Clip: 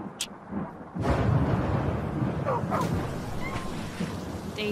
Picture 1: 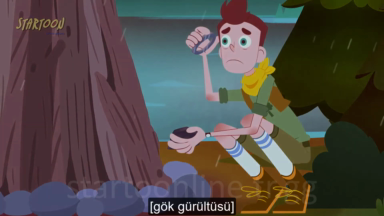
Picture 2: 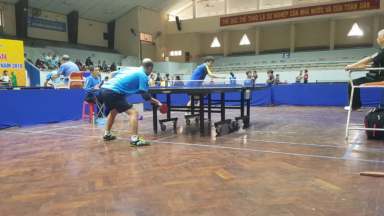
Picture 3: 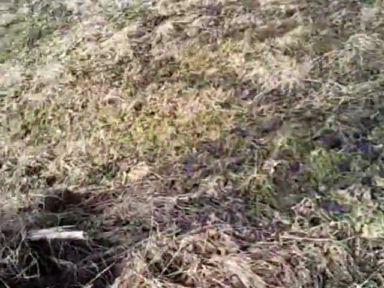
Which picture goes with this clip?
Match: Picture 1